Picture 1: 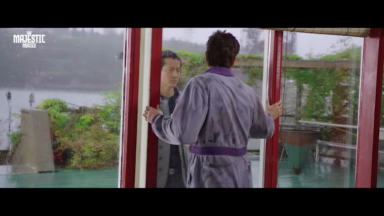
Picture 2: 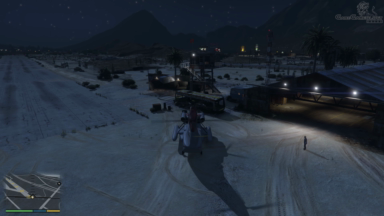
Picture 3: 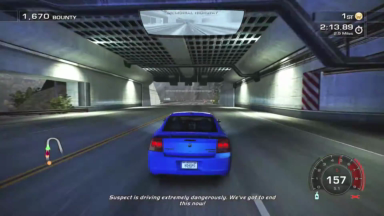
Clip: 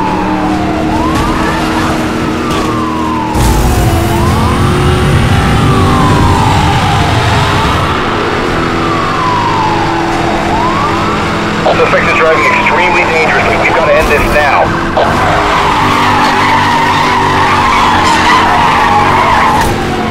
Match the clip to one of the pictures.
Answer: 3